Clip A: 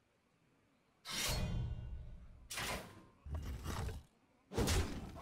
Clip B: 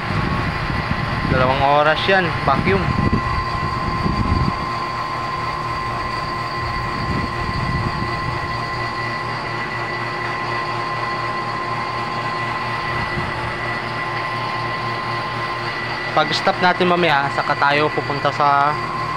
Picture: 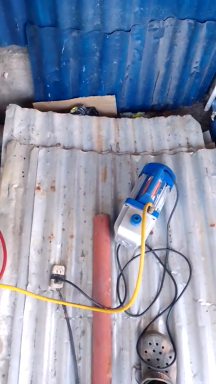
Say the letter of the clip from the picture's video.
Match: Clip B